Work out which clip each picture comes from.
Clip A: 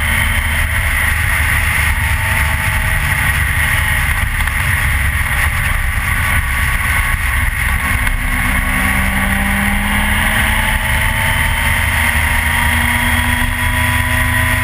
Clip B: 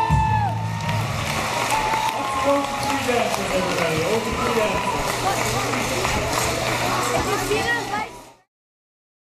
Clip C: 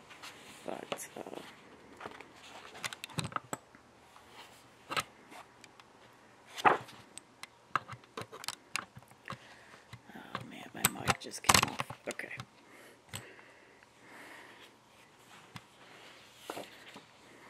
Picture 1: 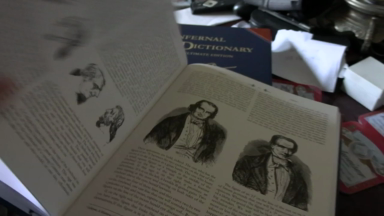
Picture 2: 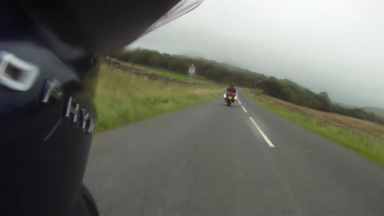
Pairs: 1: C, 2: A